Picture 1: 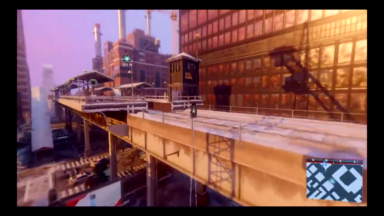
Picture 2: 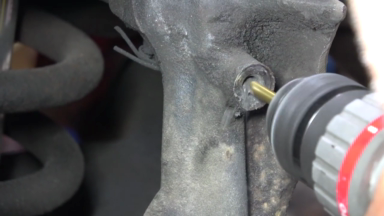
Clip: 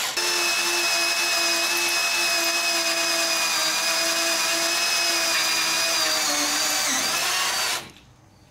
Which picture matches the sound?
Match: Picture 2